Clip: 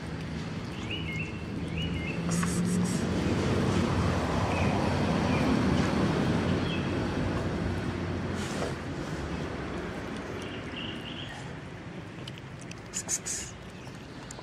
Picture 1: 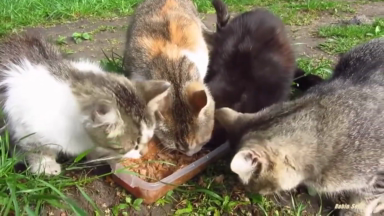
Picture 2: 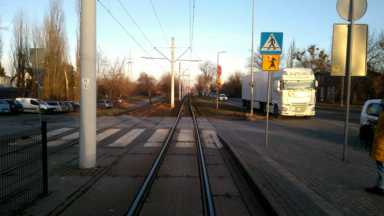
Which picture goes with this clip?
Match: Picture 1